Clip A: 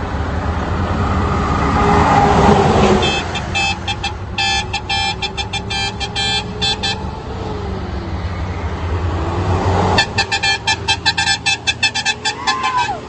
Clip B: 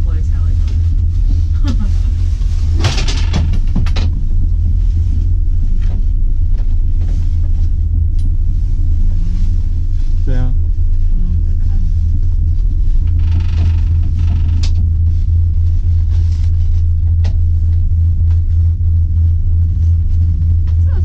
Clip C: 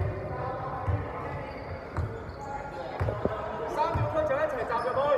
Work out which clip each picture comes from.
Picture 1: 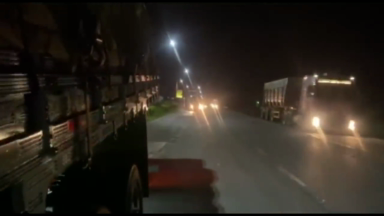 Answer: A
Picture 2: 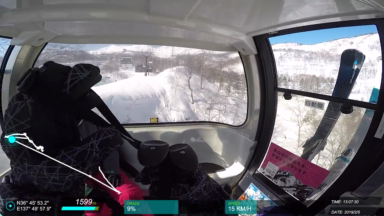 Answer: B